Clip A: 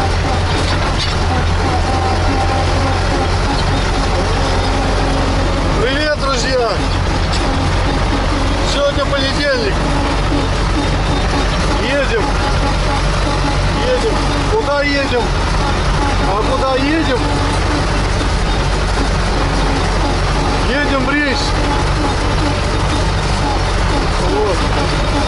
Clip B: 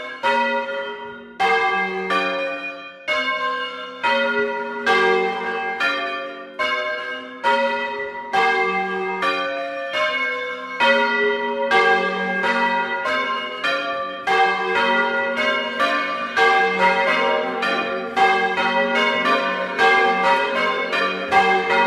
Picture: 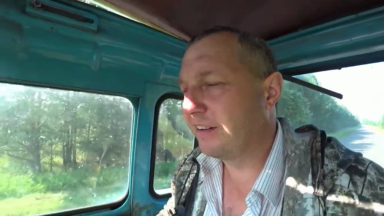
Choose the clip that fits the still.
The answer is A